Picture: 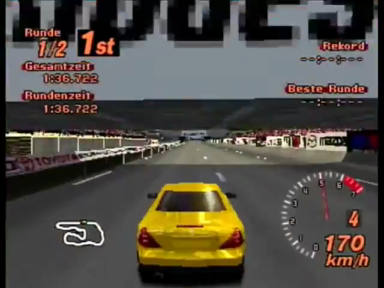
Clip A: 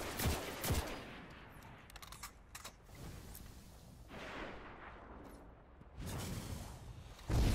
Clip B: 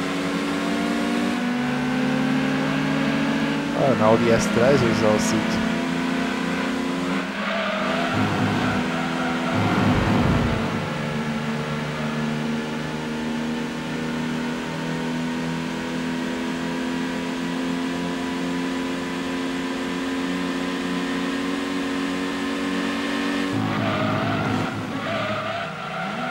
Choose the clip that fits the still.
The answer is B